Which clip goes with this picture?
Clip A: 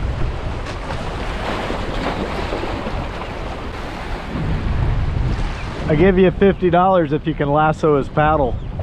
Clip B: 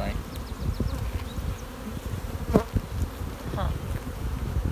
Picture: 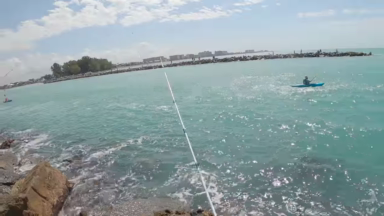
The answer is A